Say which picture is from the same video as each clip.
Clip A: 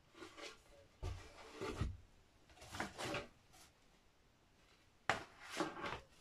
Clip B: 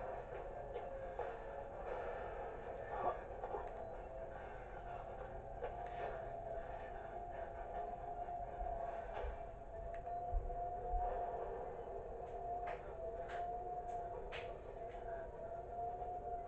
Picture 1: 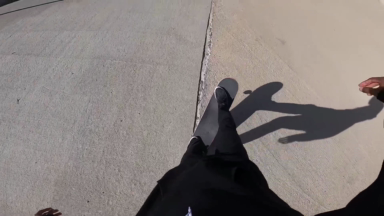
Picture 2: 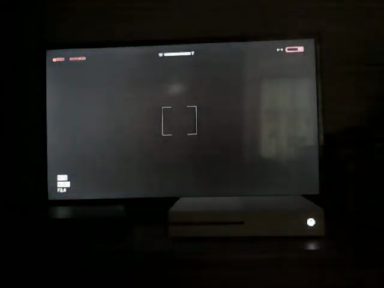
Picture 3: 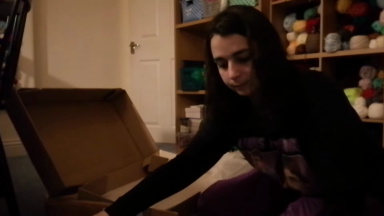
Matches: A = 3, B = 2